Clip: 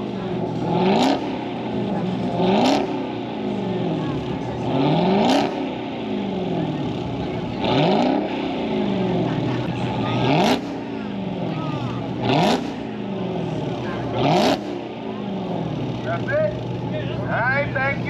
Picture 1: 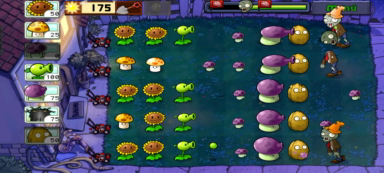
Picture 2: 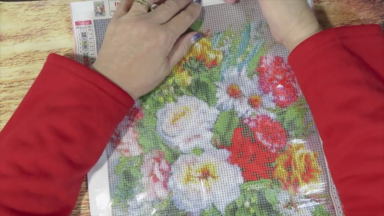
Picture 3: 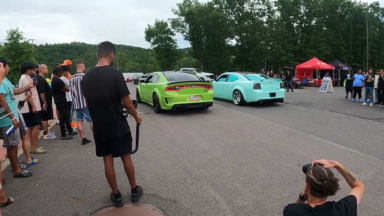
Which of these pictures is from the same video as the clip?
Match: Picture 3